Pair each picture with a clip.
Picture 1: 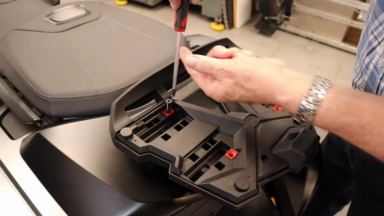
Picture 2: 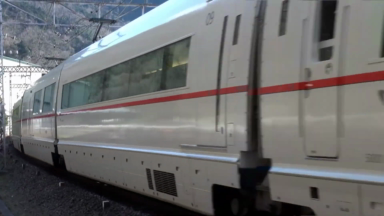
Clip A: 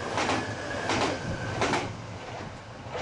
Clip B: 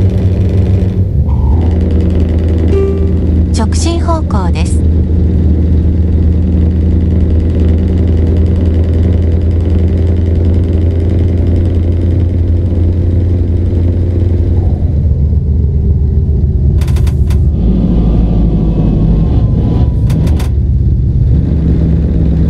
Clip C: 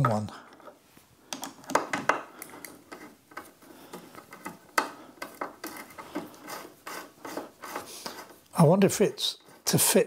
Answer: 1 C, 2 A